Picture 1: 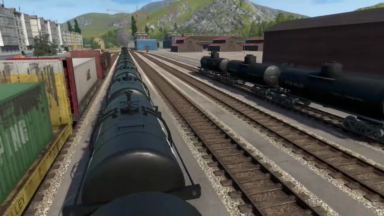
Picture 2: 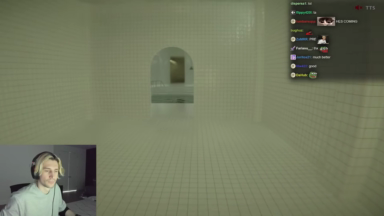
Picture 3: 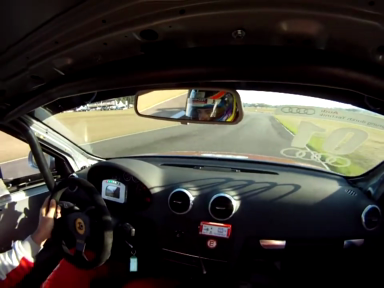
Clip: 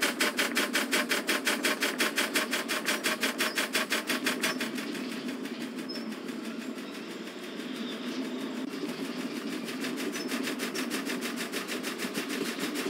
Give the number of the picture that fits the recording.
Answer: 1